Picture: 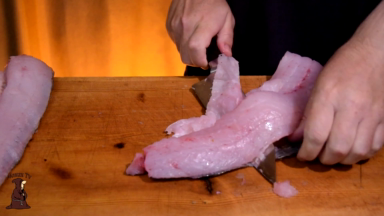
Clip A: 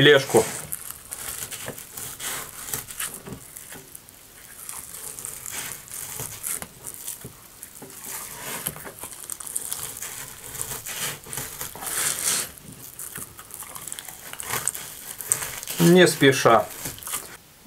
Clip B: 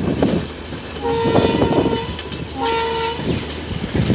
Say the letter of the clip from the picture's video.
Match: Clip A